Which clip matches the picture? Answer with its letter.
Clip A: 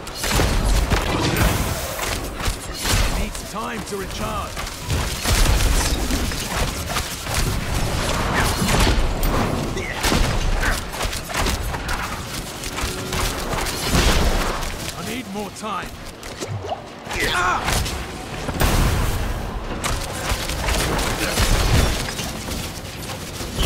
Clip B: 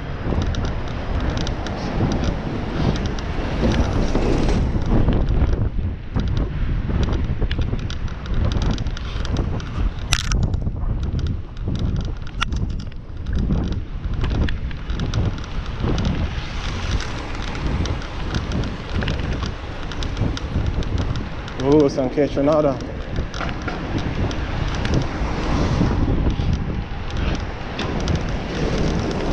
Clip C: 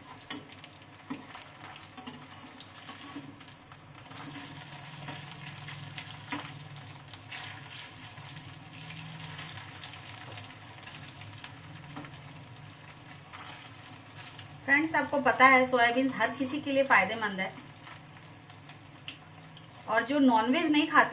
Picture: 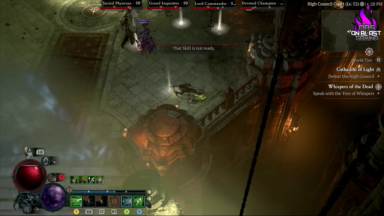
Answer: A